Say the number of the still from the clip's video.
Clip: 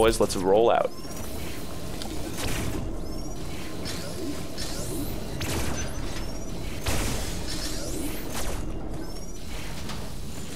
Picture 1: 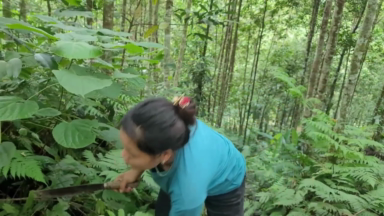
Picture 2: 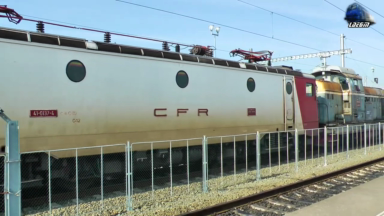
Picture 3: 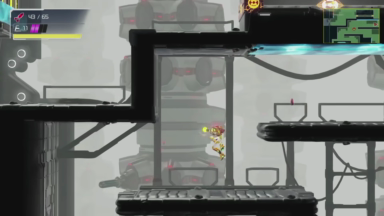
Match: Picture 3